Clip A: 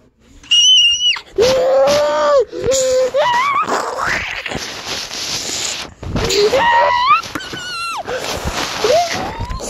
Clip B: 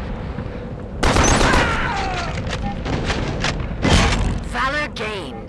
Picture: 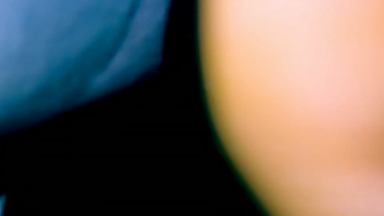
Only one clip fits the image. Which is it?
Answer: A